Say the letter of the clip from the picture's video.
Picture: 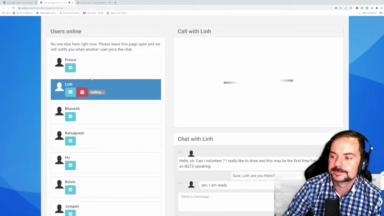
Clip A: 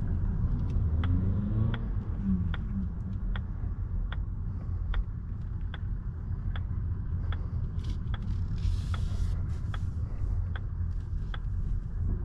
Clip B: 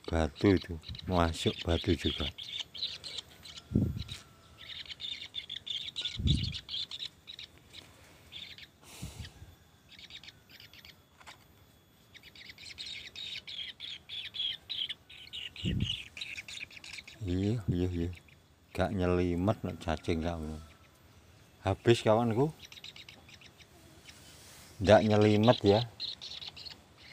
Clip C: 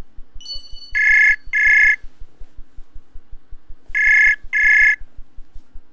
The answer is C